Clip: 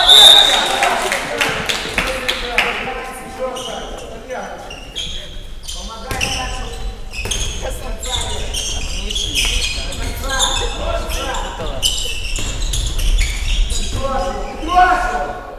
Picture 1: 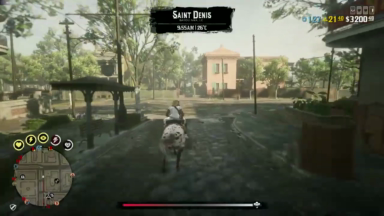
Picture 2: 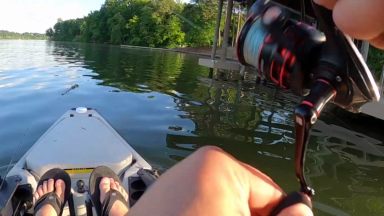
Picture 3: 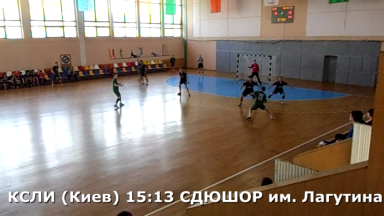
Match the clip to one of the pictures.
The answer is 3